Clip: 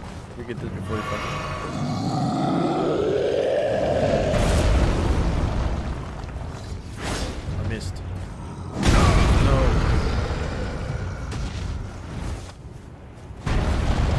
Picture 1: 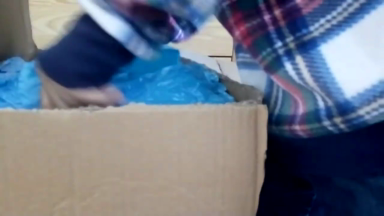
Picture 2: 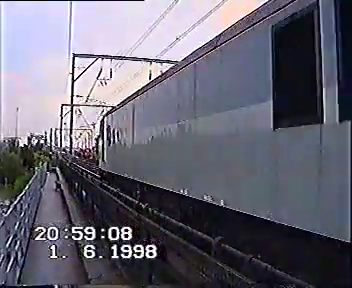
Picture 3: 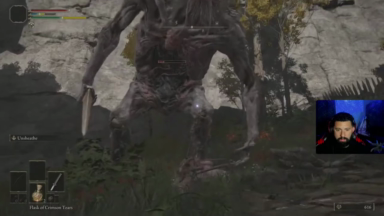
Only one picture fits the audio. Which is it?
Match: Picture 3